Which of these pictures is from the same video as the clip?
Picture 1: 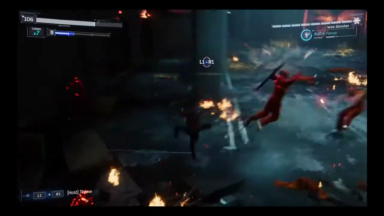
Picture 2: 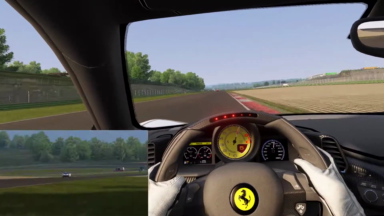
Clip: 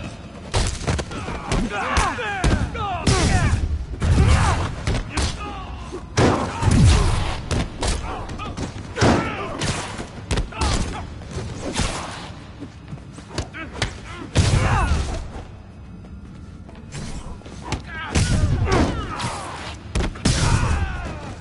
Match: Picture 1